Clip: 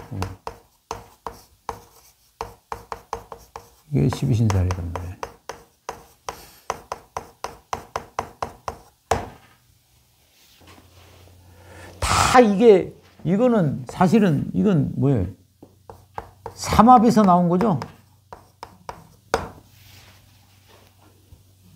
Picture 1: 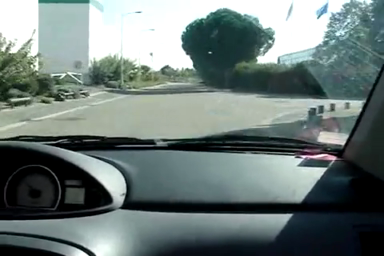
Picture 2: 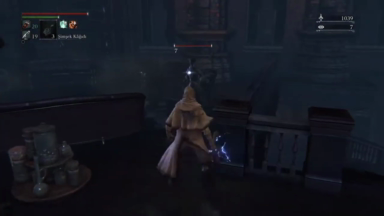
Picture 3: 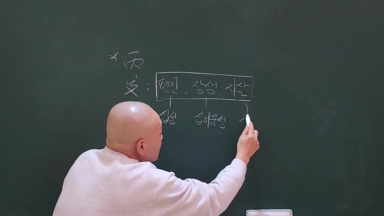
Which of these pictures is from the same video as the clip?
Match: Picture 3